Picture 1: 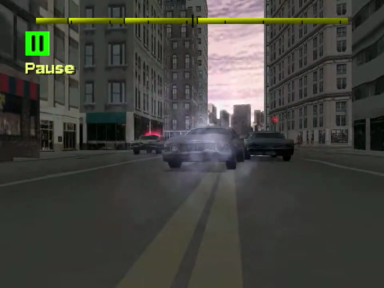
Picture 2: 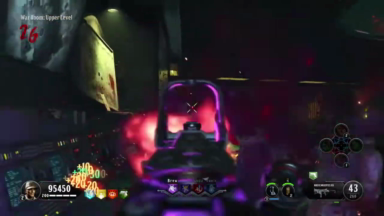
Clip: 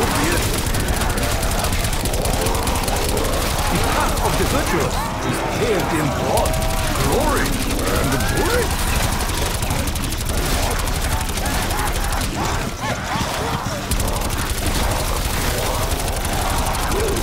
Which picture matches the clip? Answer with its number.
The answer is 2